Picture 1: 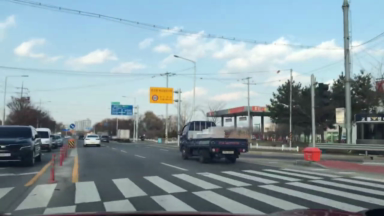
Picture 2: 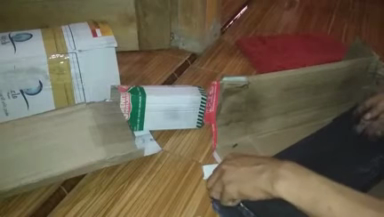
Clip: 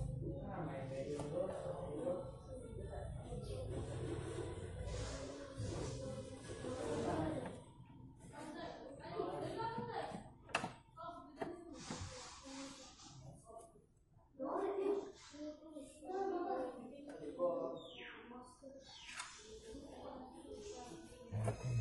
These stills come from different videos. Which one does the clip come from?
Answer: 2